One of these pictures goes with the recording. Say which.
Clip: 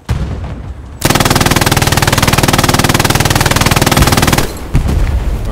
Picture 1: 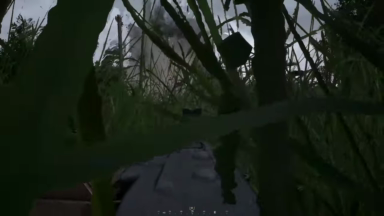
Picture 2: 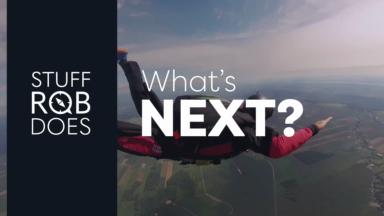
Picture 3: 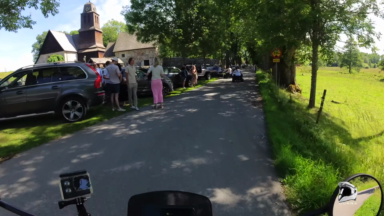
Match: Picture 1